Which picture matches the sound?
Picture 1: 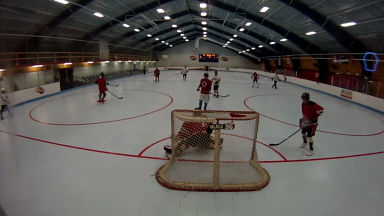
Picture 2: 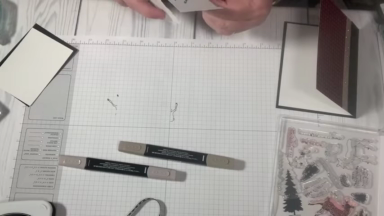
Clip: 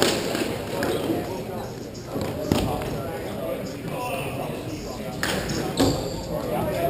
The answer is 1